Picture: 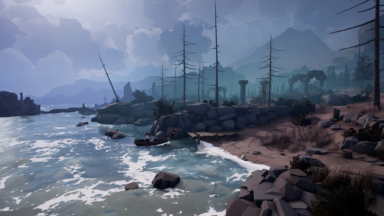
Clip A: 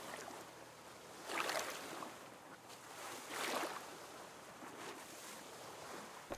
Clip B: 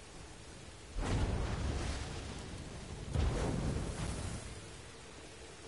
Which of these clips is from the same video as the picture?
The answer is A